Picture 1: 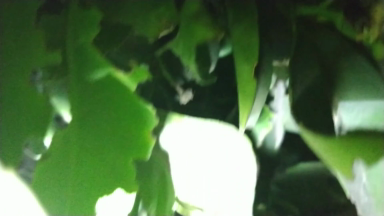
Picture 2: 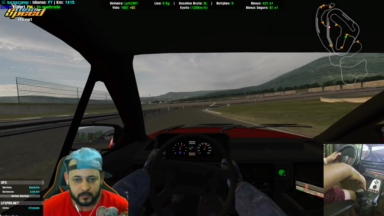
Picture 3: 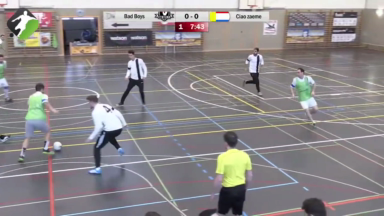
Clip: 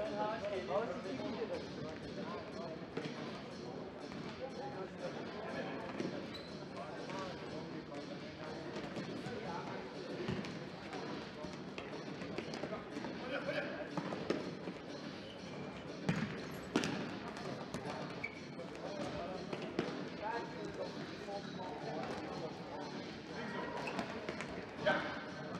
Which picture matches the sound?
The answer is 3